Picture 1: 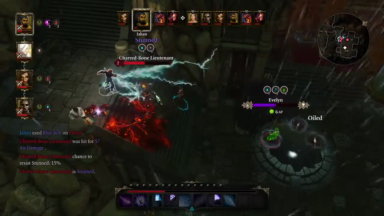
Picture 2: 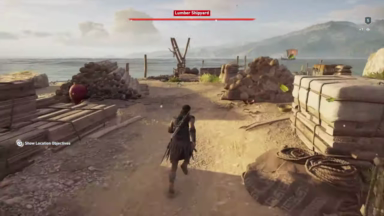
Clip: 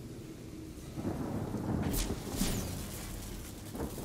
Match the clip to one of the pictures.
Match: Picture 1